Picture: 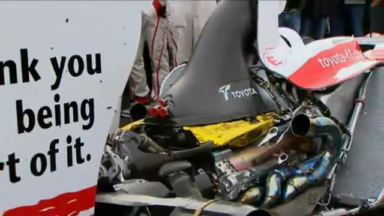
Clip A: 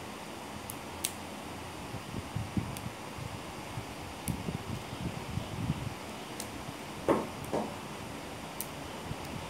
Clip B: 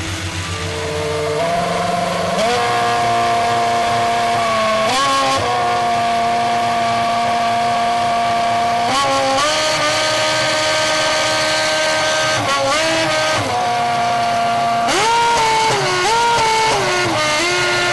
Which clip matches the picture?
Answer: B